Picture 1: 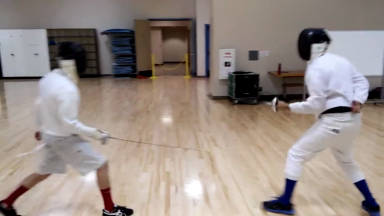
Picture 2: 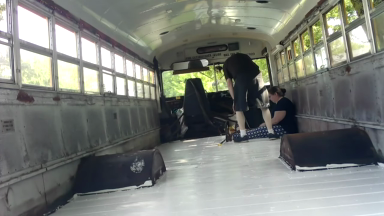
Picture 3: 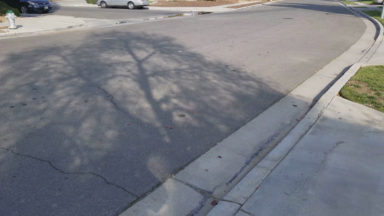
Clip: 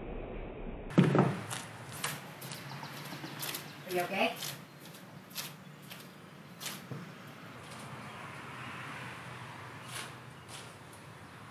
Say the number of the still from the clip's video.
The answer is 2